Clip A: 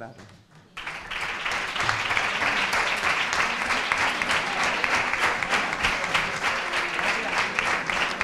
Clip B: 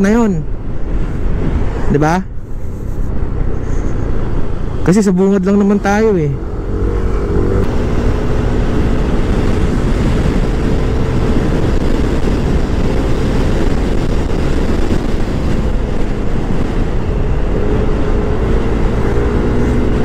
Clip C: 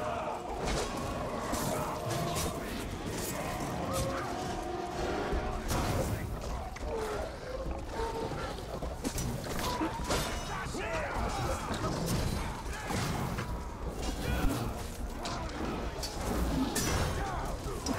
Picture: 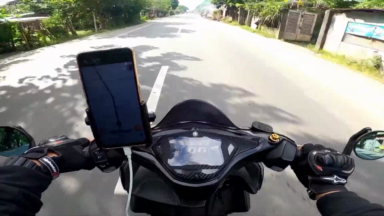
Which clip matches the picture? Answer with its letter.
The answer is B